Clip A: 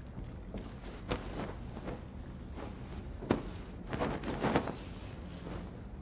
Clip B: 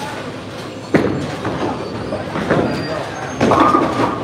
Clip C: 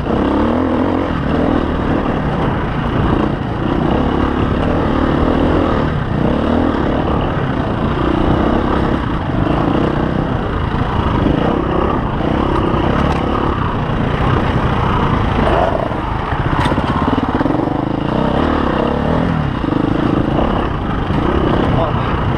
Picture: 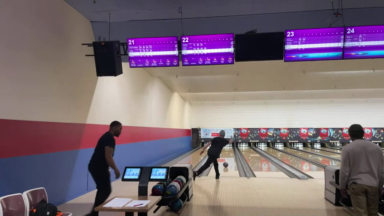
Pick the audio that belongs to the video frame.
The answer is B